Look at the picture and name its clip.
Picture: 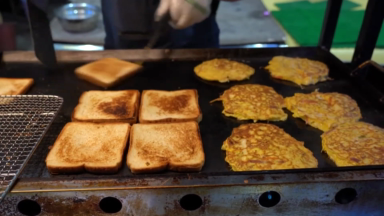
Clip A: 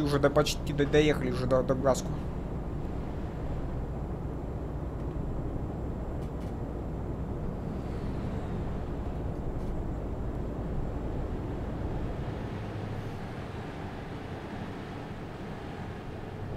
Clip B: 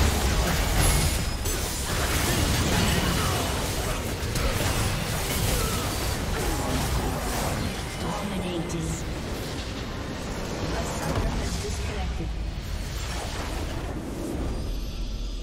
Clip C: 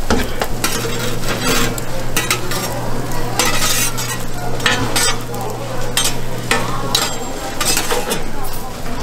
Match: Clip C